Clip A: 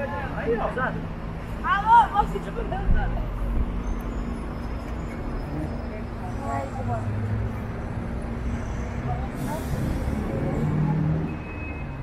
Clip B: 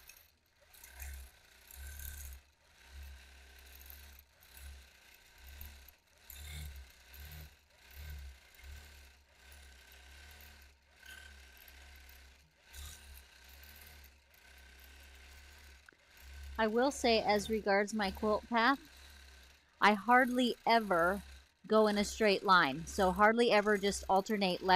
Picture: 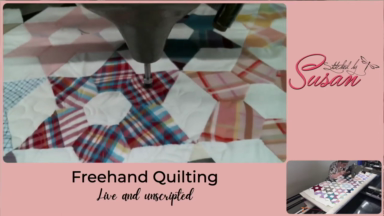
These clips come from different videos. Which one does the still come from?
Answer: B